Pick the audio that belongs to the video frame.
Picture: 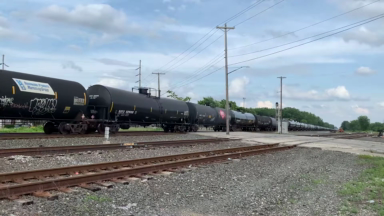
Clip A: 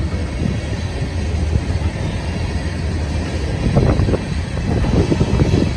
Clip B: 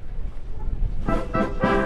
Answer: A